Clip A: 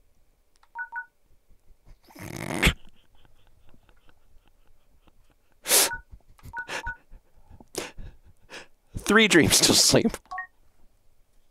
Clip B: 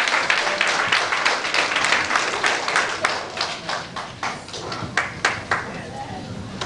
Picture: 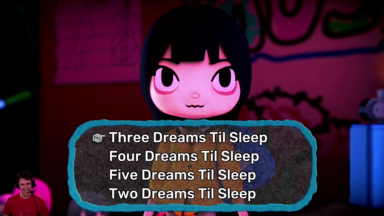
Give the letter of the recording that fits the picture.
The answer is A